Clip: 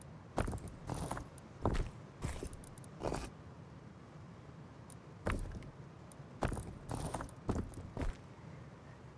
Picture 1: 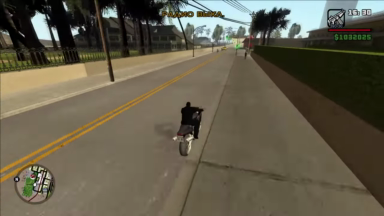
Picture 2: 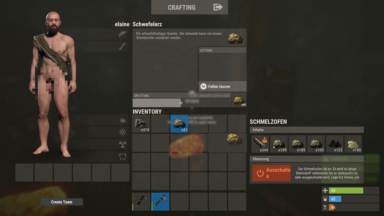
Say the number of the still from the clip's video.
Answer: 2